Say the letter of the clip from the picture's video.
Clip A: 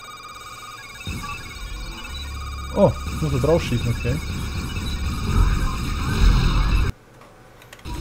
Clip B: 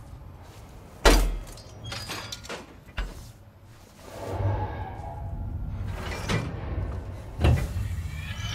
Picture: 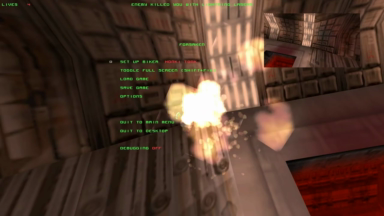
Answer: A